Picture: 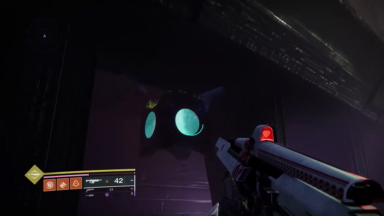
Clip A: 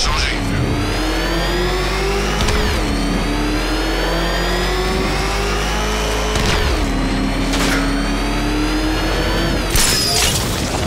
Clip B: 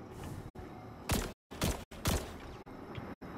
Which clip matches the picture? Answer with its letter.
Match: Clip B